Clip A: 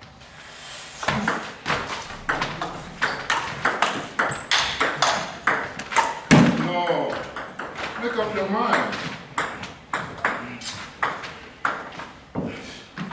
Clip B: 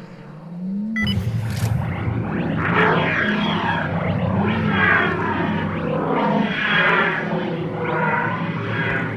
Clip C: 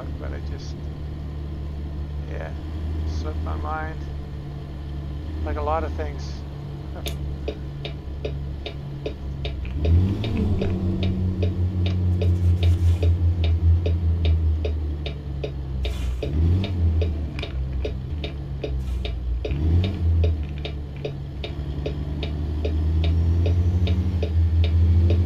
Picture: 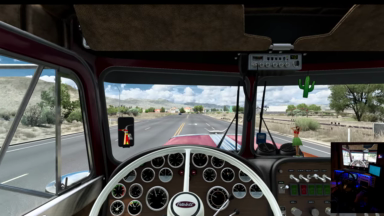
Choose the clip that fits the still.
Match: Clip C